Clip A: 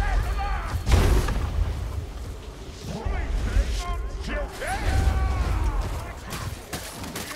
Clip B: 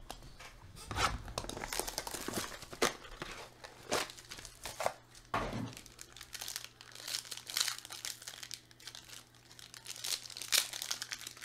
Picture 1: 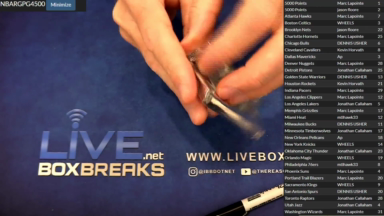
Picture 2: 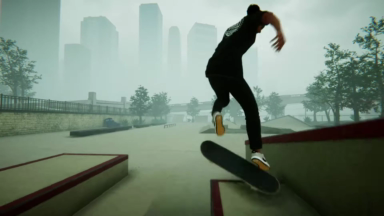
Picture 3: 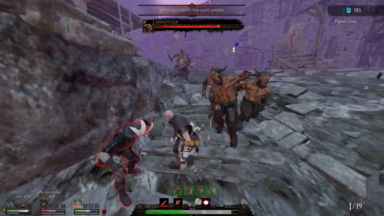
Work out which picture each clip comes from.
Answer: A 3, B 1